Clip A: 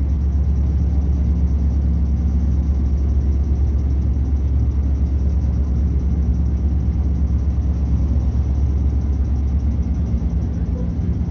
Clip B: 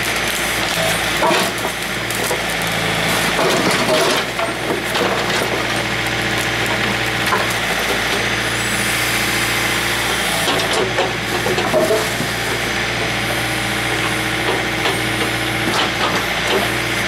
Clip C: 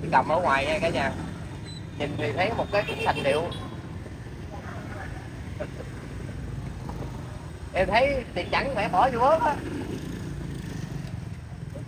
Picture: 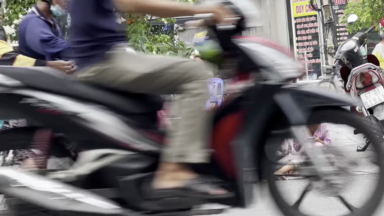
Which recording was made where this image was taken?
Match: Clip C